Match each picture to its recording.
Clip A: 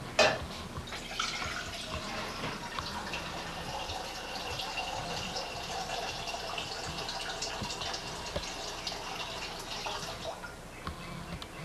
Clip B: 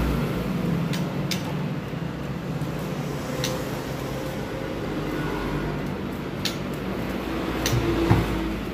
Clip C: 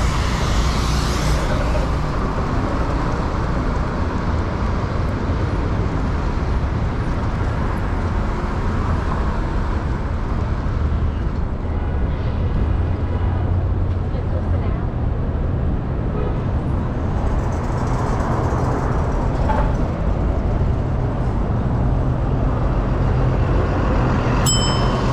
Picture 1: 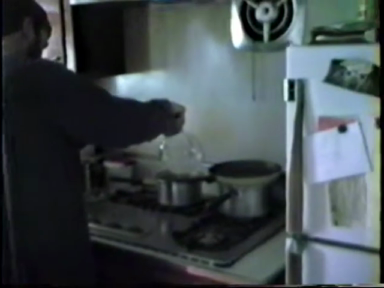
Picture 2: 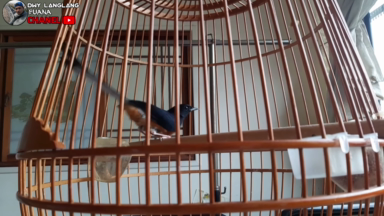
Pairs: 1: A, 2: B